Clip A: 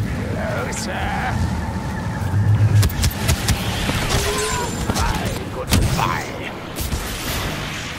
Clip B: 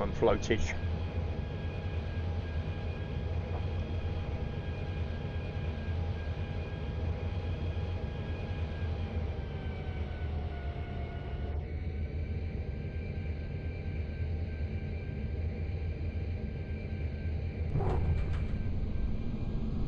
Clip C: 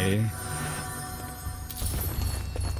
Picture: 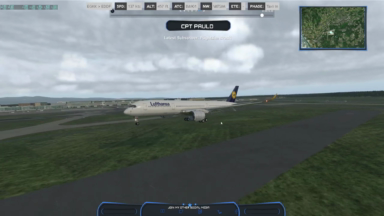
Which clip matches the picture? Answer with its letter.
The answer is B